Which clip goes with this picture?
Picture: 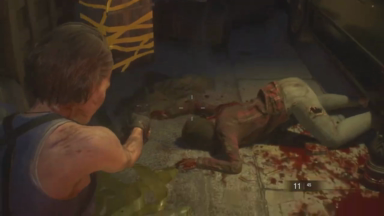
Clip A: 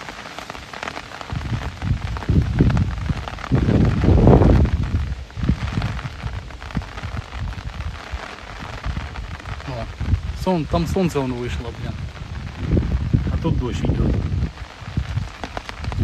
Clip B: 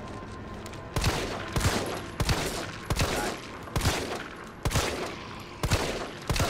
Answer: B